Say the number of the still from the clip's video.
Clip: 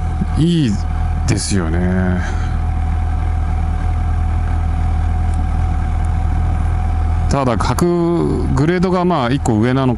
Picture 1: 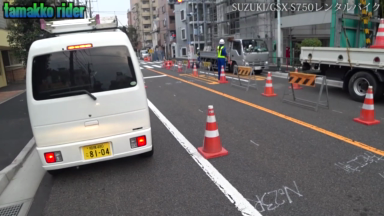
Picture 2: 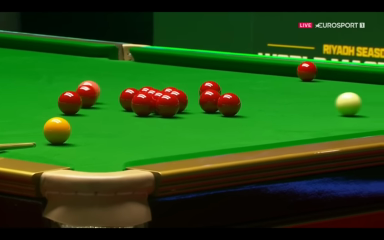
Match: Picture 1